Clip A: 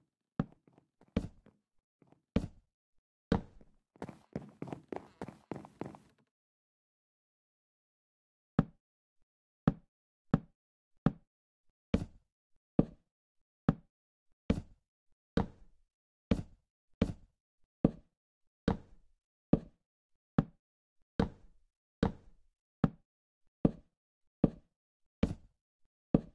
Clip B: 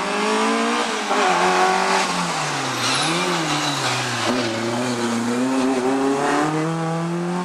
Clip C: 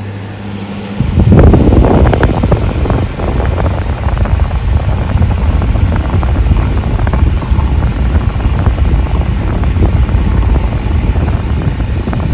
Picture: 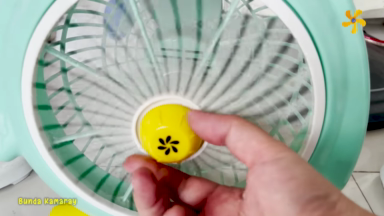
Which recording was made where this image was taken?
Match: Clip C